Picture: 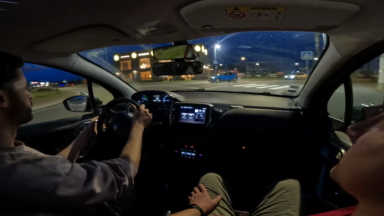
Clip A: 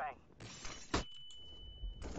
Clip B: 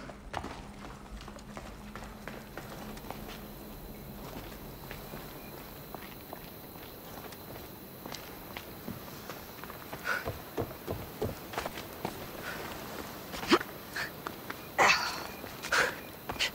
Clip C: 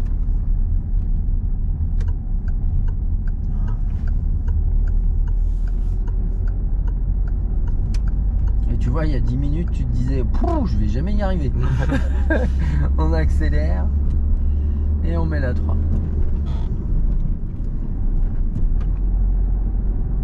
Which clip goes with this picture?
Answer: C